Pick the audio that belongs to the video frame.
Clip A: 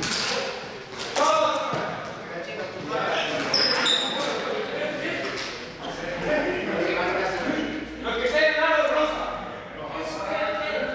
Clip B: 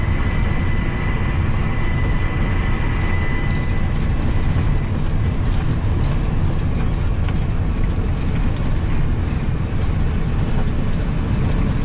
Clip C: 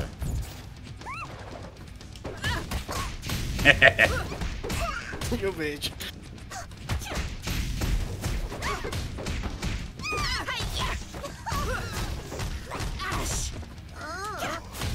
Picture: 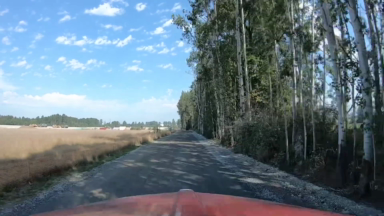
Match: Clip B